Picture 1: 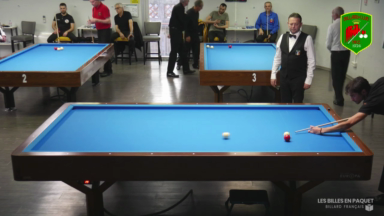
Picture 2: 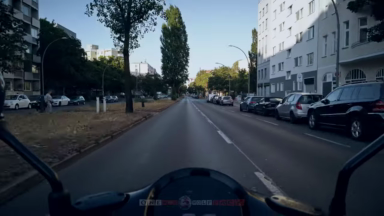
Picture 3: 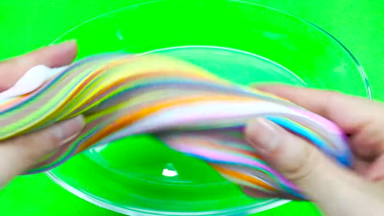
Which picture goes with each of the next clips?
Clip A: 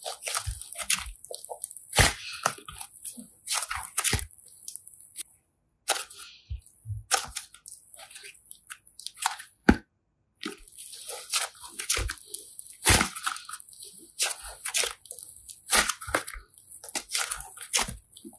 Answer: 3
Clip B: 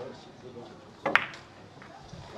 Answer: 1